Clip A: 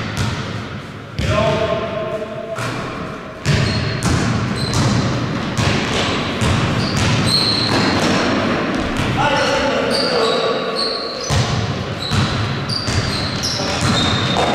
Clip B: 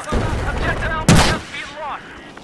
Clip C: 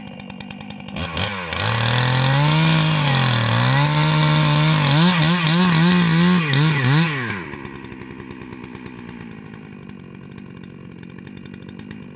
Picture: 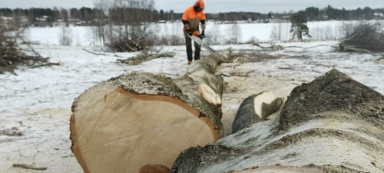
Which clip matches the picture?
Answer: C